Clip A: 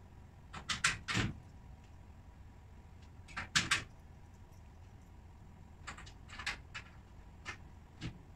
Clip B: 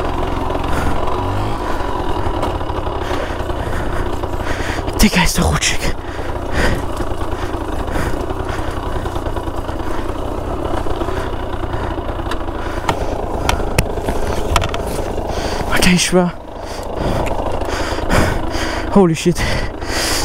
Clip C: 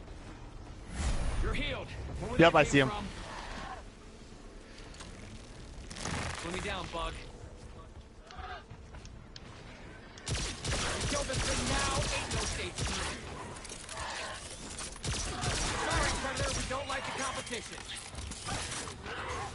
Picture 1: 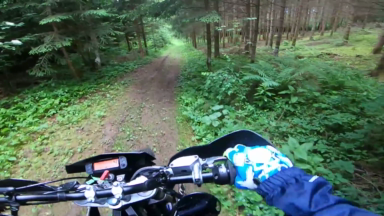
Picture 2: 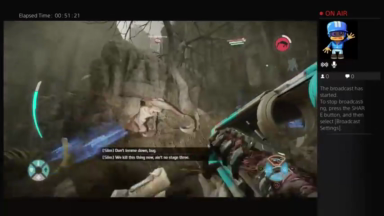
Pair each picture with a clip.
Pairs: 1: B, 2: C